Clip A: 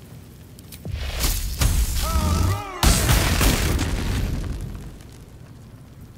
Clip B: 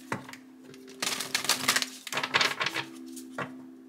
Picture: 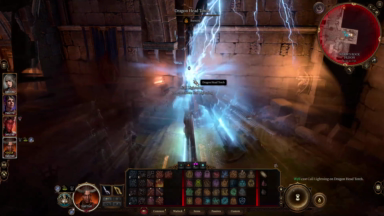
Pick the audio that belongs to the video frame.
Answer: A